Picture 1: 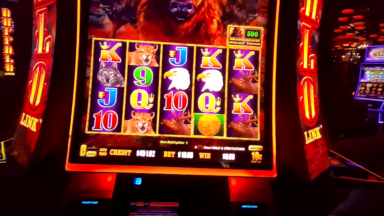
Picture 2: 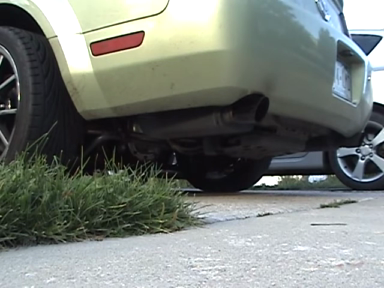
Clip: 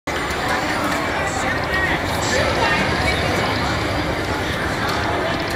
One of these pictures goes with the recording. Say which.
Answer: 1